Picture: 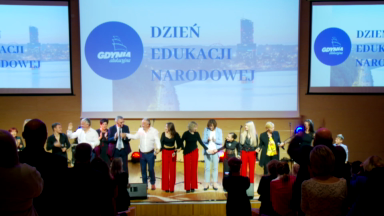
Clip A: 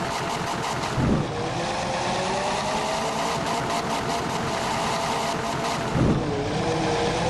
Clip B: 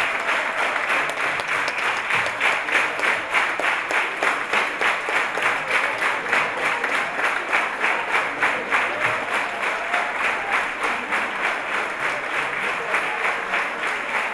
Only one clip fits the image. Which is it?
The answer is B